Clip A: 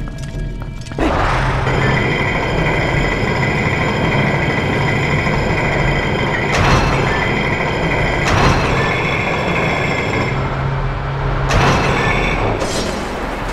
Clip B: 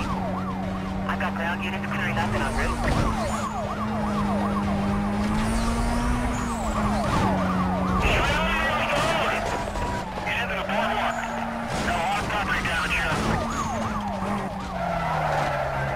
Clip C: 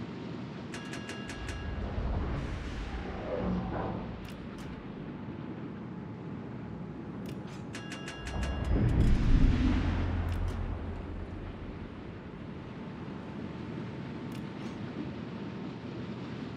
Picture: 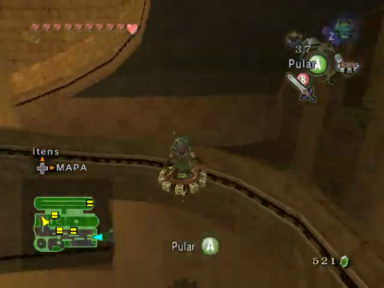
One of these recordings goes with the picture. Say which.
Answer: A